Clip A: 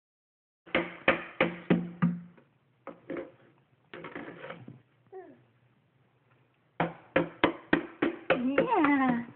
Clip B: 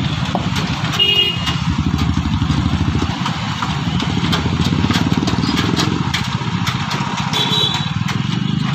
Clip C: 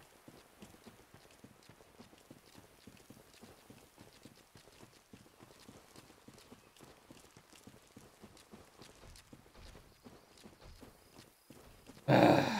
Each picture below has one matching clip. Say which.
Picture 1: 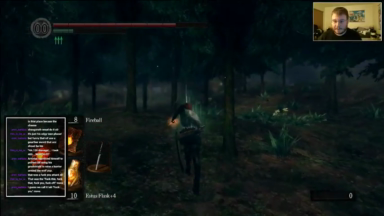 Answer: C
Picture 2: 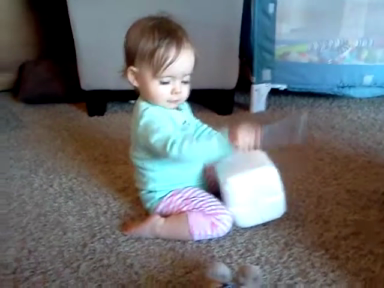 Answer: A